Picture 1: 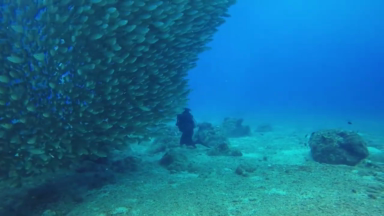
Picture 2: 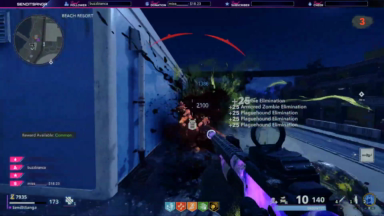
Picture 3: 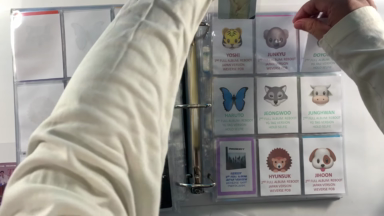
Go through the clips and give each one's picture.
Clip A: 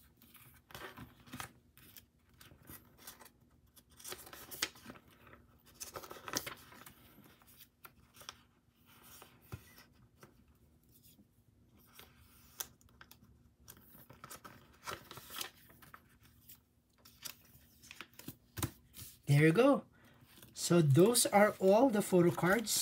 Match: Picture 3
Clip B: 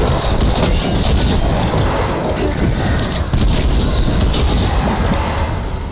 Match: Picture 2